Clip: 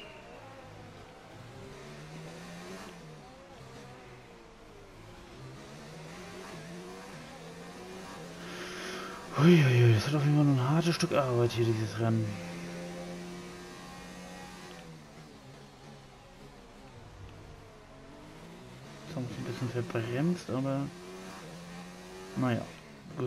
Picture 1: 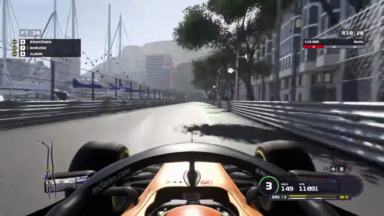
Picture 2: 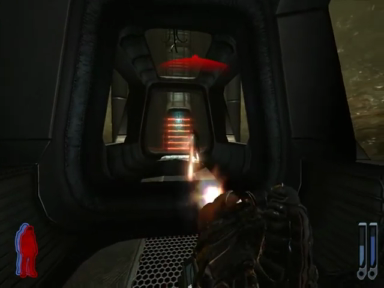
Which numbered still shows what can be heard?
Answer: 1